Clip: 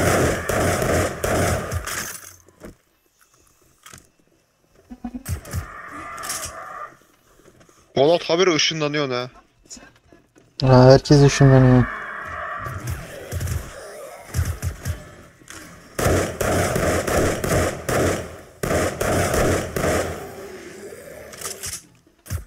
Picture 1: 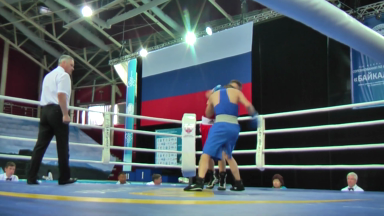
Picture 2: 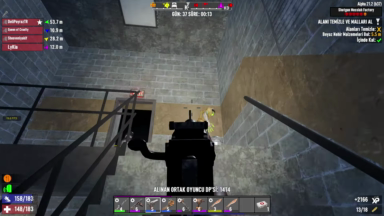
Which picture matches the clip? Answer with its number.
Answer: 2